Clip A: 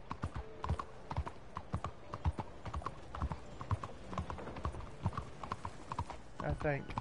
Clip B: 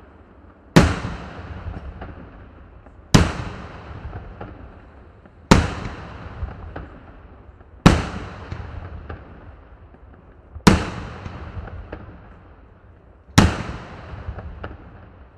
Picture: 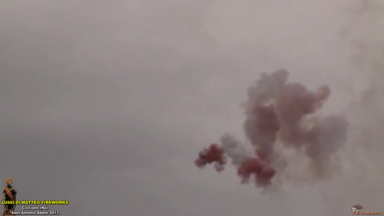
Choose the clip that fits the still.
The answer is B